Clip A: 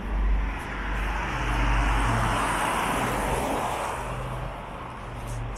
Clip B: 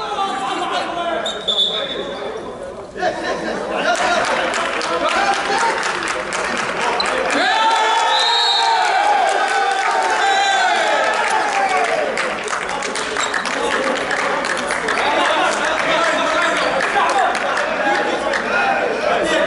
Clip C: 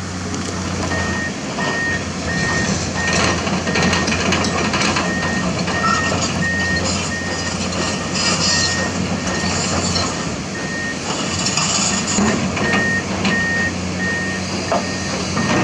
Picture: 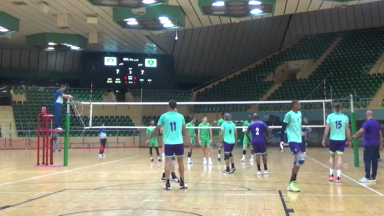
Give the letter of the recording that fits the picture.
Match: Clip B